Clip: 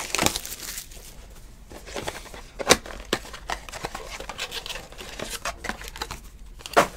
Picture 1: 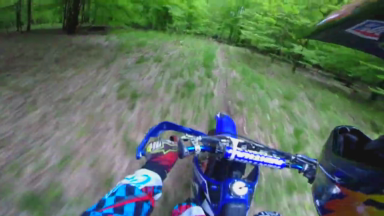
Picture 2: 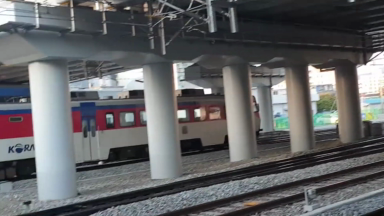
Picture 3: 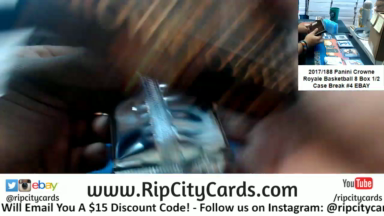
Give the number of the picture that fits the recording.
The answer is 3